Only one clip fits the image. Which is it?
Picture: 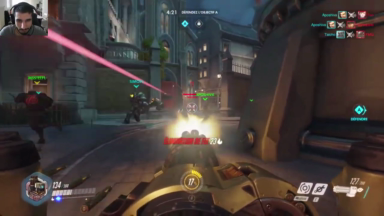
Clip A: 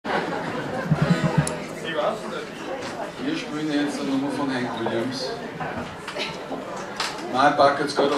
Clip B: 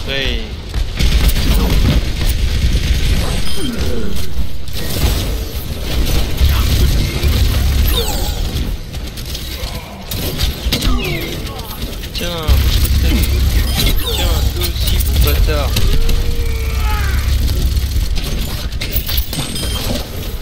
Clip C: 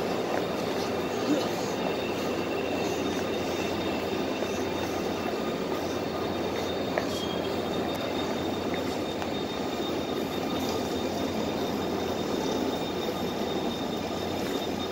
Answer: B